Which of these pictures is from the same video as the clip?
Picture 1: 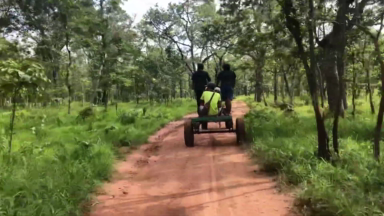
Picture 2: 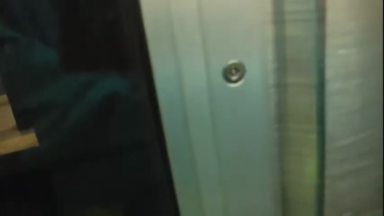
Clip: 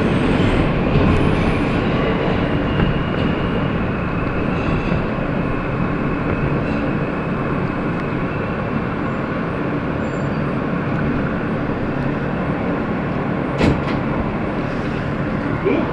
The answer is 2